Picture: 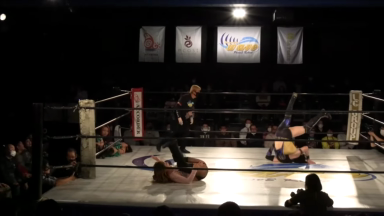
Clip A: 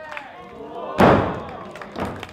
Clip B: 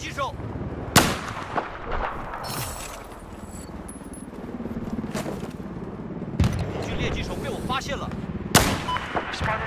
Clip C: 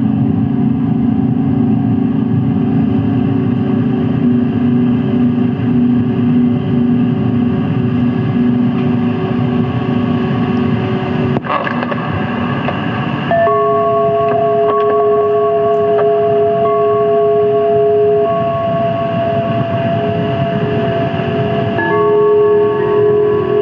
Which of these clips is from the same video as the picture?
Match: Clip A